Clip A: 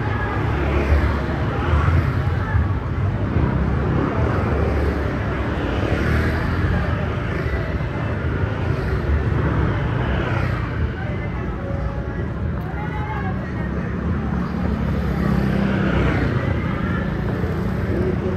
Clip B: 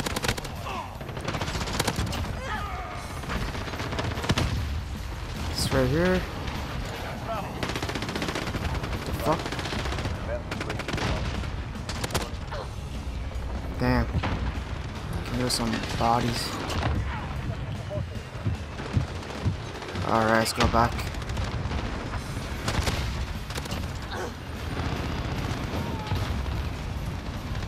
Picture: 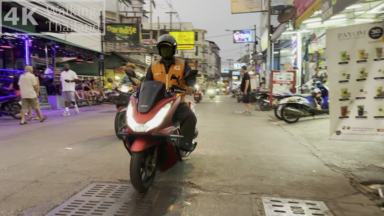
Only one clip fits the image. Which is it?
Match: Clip A